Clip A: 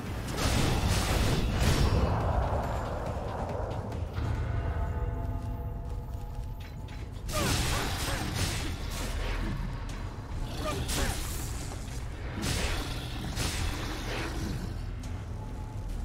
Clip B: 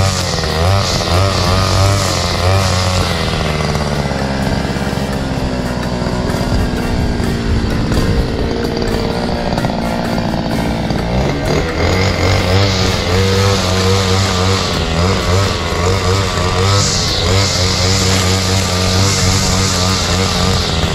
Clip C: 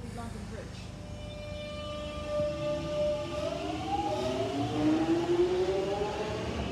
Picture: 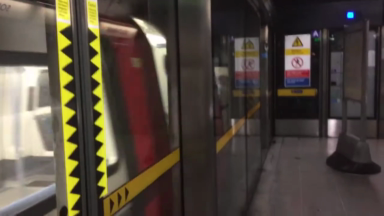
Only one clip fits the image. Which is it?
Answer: C